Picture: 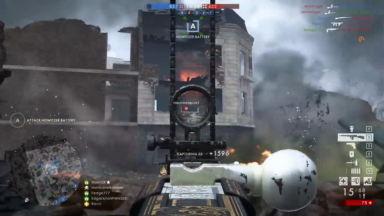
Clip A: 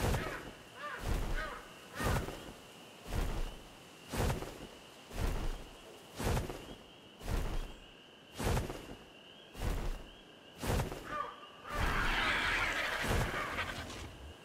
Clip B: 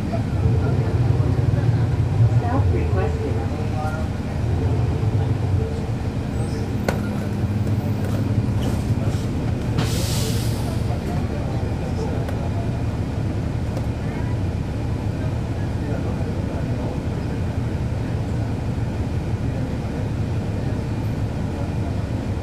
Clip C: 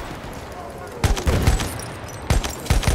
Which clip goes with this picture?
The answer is C